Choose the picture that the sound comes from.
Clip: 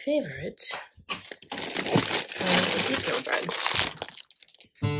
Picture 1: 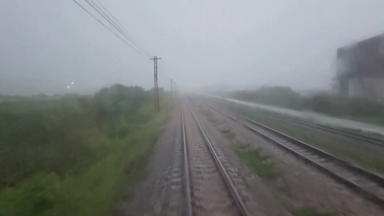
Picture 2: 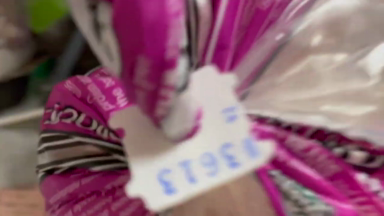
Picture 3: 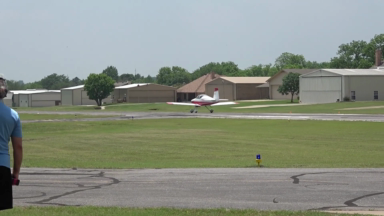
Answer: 2